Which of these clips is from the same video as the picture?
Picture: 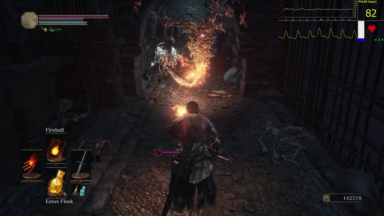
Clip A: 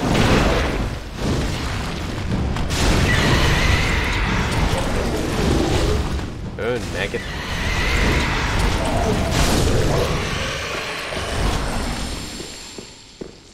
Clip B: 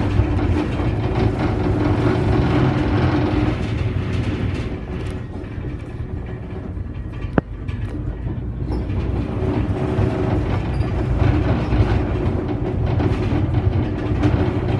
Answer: A